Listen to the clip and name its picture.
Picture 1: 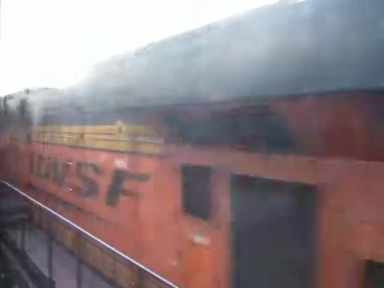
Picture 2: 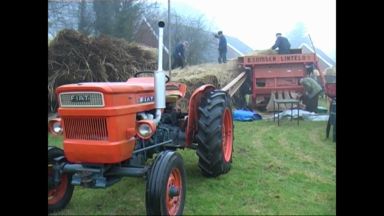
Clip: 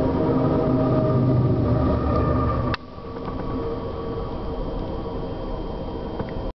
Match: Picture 1